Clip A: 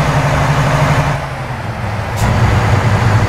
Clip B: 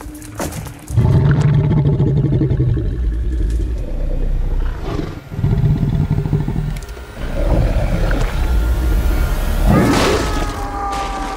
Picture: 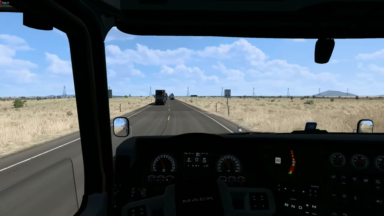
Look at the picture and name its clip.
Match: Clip A